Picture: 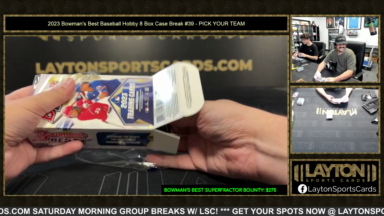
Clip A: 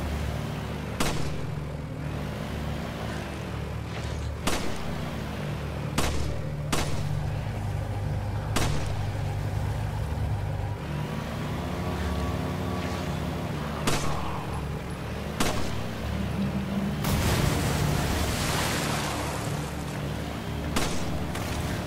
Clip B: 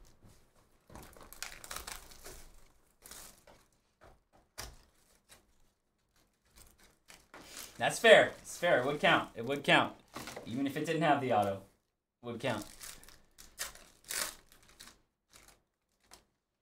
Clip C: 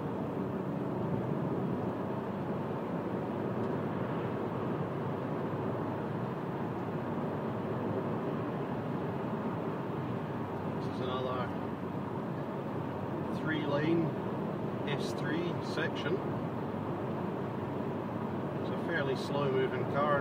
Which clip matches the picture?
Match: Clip B